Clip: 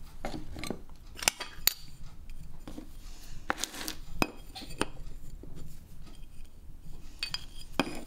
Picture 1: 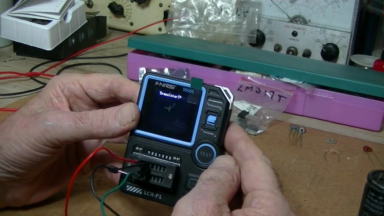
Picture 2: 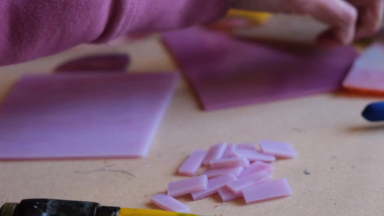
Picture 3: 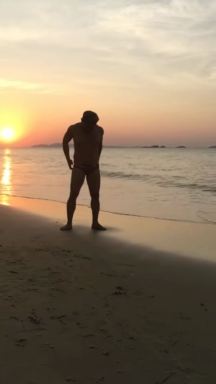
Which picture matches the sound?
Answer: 2